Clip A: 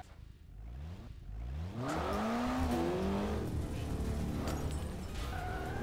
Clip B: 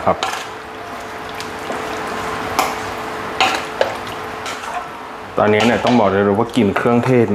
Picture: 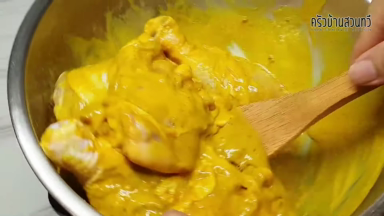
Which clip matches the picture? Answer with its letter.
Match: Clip B